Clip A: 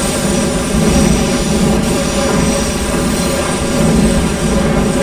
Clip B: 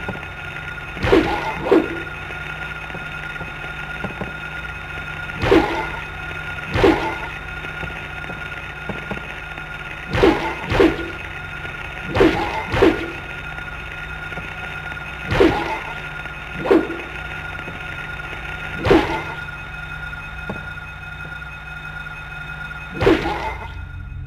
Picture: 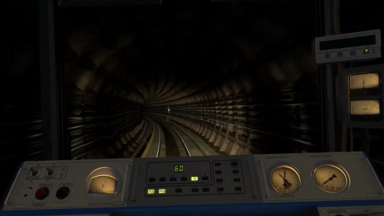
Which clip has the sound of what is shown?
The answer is A